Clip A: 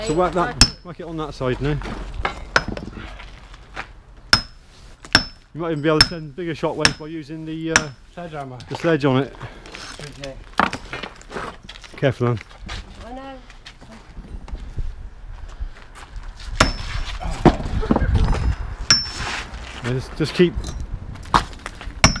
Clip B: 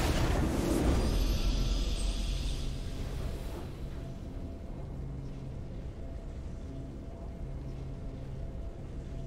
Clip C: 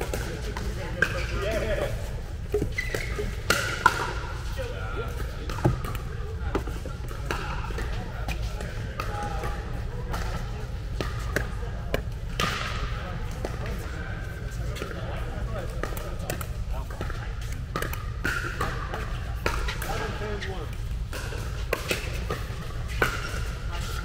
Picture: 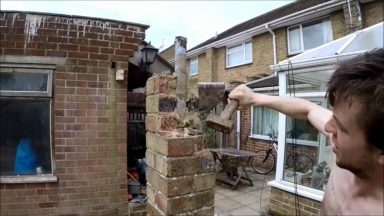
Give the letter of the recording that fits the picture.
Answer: A